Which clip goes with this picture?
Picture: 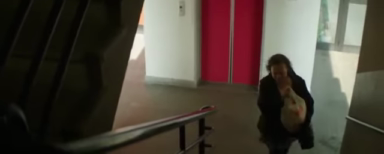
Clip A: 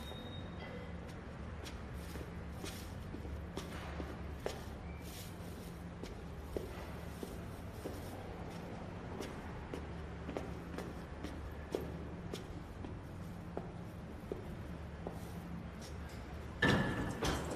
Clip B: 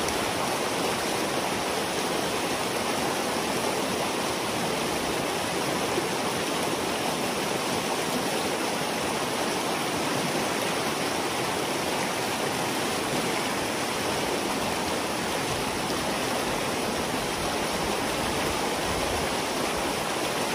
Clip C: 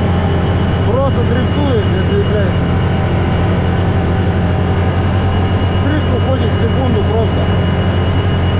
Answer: A